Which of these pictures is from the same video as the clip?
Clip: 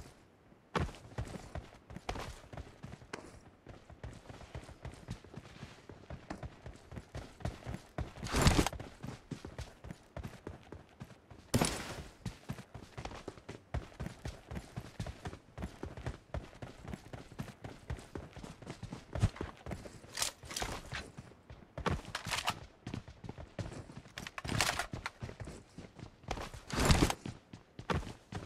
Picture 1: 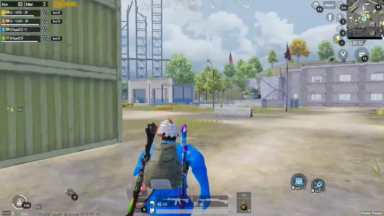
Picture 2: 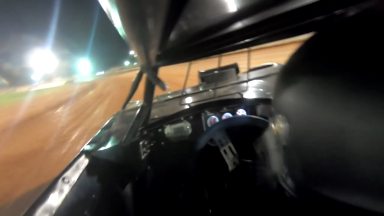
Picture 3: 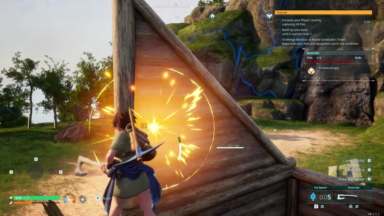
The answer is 1